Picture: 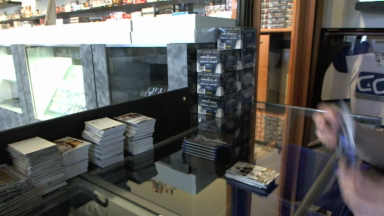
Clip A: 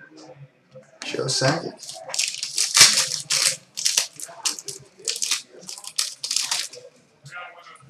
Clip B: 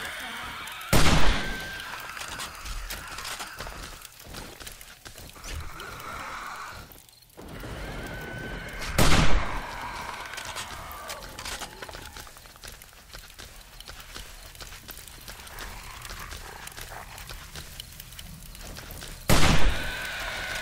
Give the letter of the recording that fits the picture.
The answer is A